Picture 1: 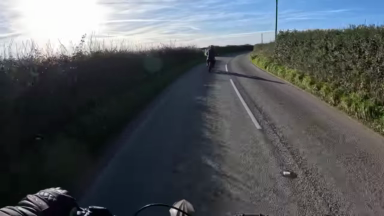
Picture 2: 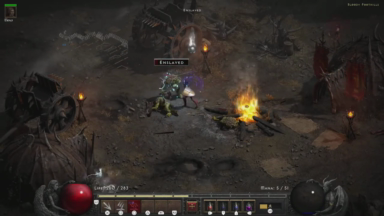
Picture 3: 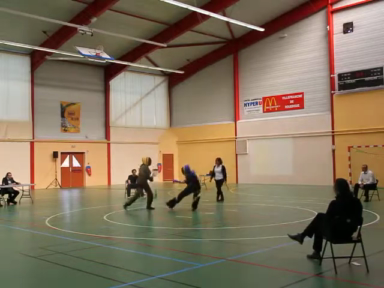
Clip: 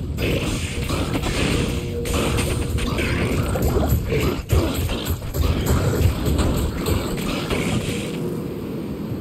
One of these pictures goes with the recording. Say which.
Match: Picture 2